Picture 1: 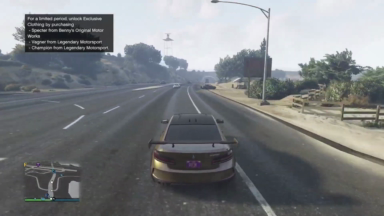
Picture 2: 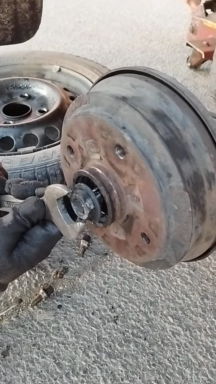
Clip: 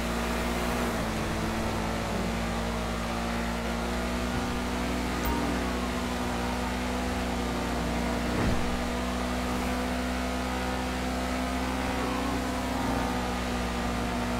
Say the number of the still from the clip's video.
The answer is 1